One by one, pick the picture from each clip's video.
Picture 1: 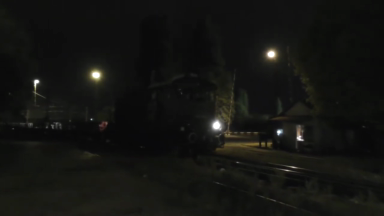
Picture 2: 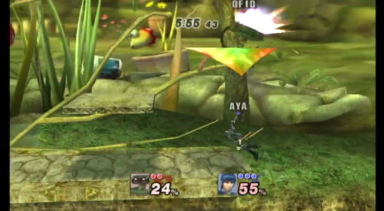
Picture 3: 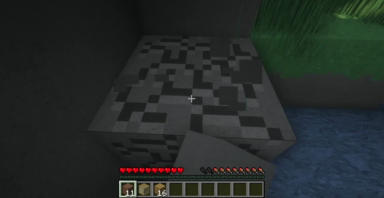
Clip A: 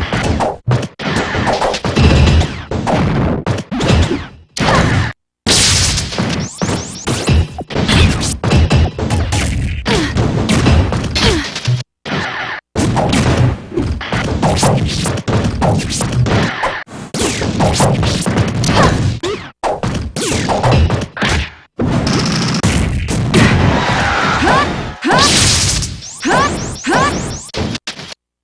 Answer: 2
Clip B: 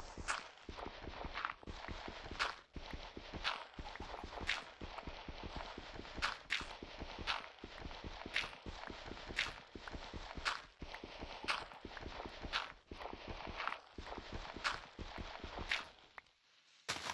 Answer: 3